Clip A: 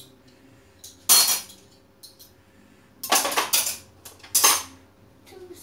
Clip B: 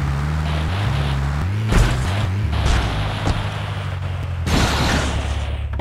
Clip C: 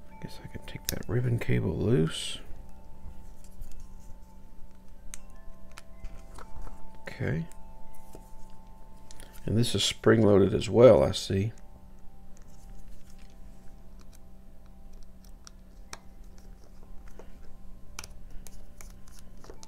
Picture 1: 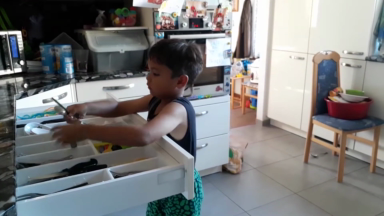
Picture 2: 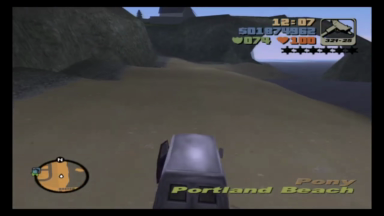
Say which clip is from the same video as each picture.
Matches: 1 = A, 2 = B